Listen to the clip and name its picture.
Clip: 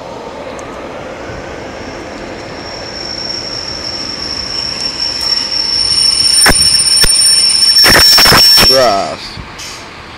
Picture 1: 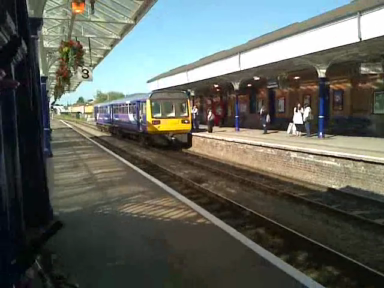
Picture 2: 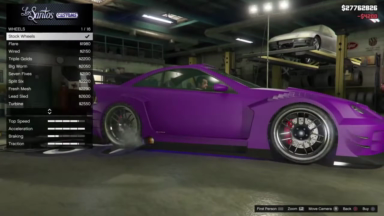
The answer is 1